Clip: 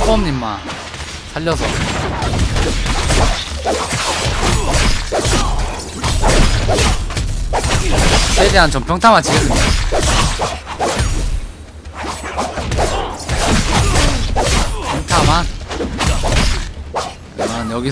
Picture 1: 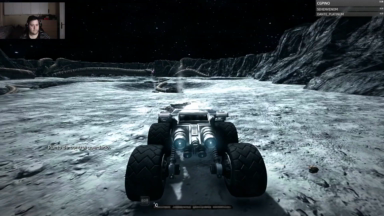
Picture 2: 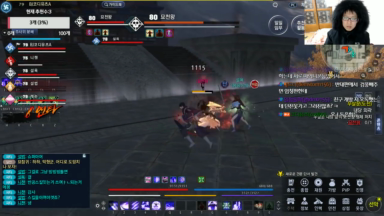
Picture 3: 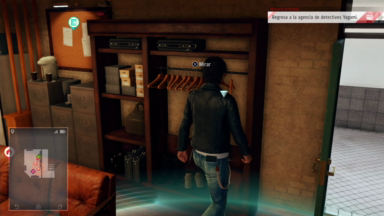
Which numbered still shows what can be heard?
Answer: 2